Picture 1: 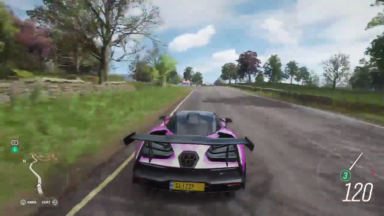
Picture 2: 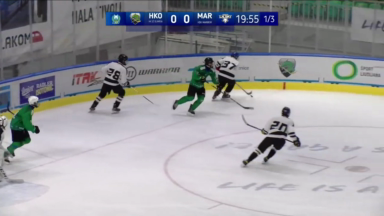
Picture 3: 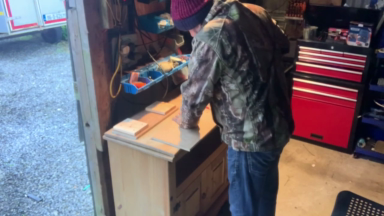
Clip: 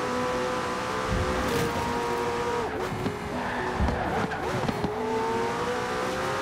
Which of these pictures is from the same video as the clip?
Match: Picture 1